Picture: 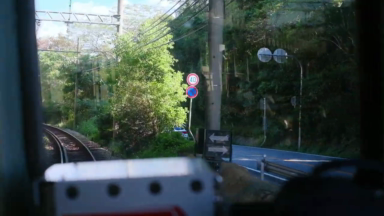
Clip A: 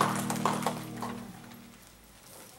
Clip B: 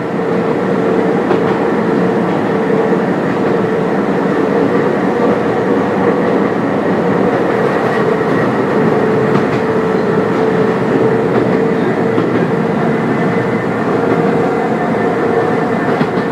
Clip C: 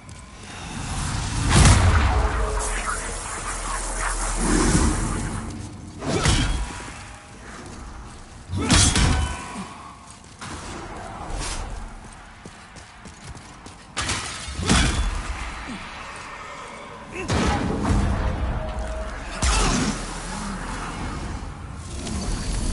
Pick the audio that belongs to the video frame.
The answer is B